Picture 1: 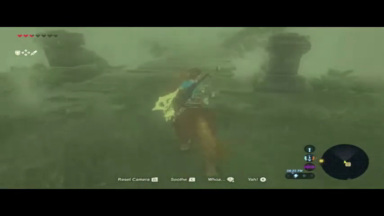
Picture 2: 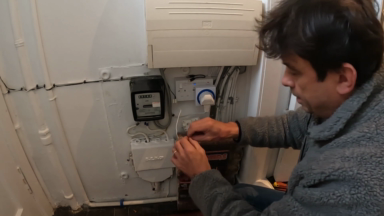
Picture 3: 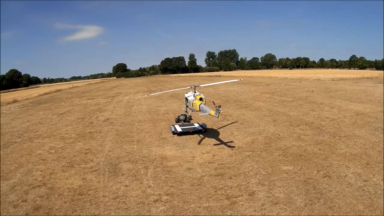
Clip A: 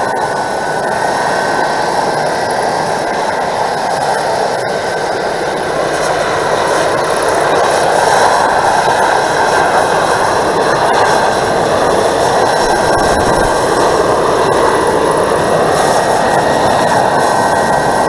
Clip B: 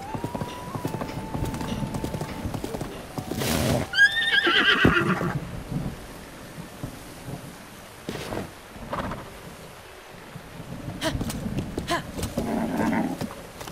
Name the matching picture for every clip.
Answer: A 3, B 1